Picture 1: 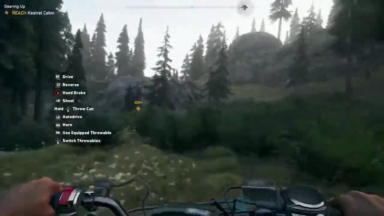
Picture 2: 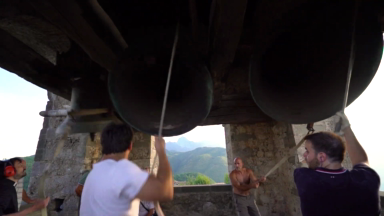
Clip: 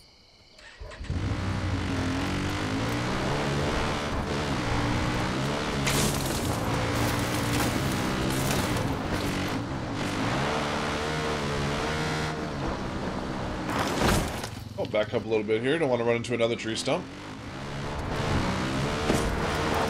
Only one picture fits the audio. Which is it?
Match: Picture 1